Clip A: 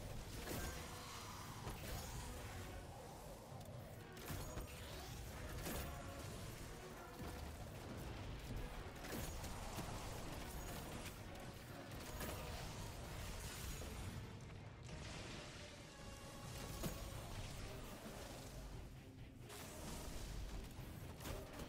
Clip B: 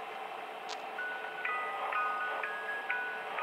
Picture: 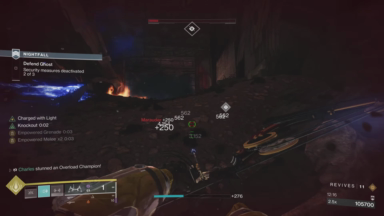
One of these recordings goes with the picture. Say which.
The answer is A